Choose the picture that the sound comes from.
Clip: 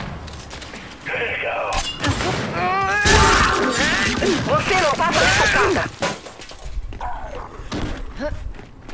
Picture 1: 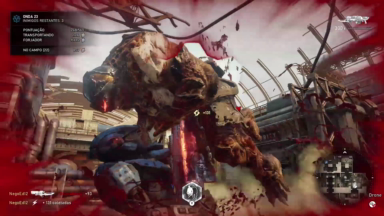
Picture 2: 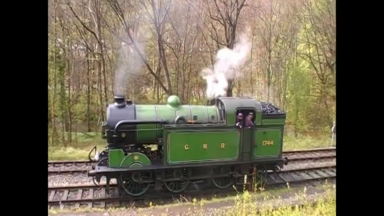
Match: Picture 1